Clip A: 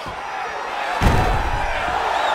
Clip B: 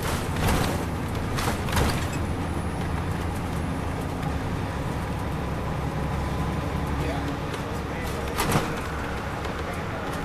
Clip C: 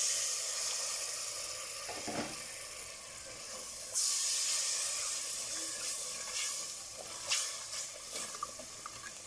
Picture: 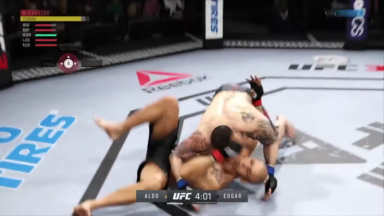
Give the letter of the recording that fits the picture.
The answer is A